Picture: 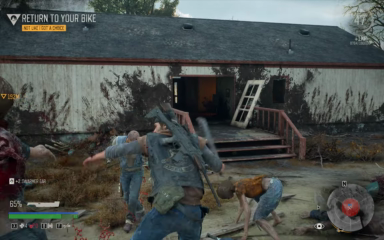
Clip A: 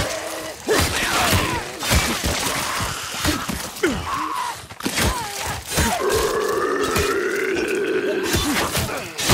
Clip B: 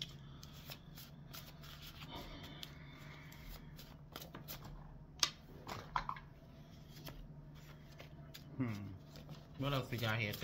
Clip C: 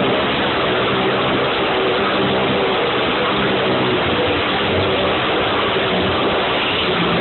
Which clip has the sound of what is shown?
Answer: A